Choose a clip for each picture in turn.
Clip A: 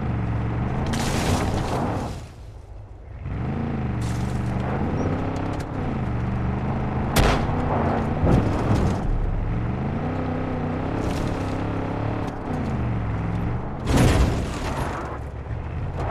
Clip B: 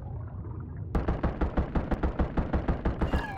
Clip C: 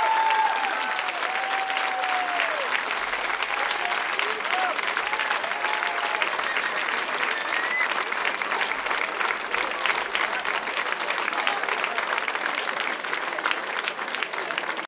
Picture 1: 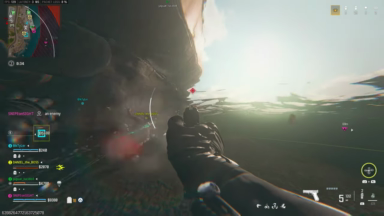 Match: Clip B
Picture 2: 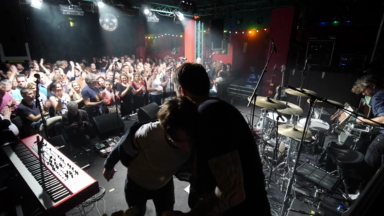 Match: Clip C